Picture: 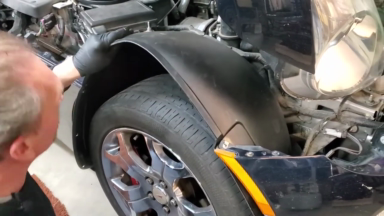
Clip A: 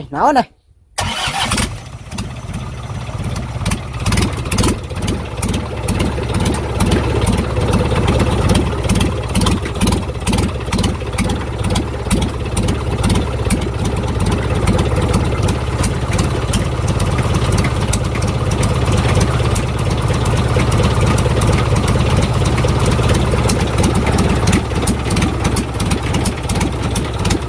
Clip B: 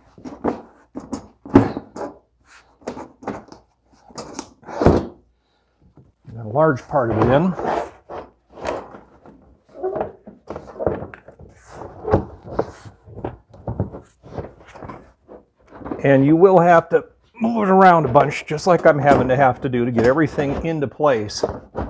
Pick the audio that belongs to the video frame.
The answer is B